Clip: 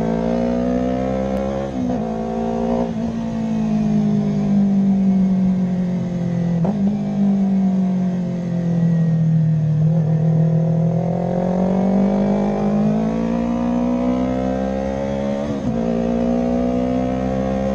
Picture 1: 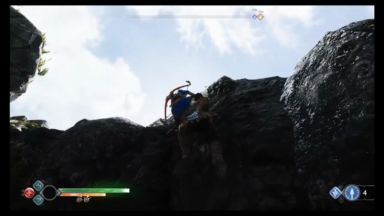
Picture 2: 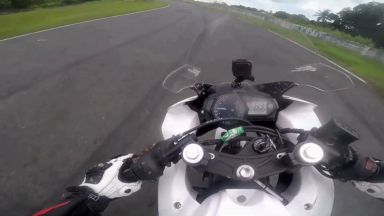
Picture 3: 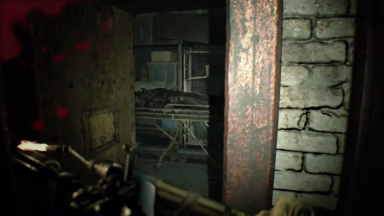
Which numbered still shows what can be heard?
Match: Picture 2